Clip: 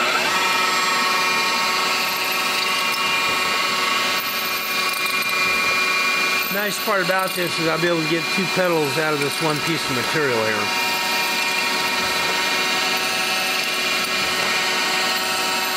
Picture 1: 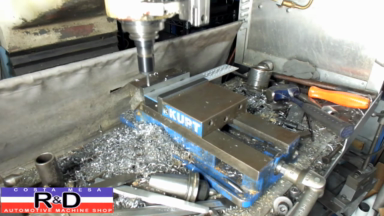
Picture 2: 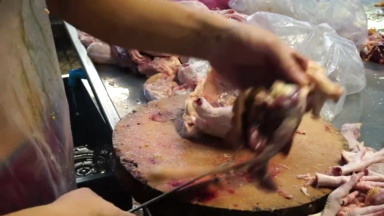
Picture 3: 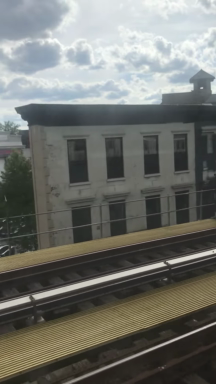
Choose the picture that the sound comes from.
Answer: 1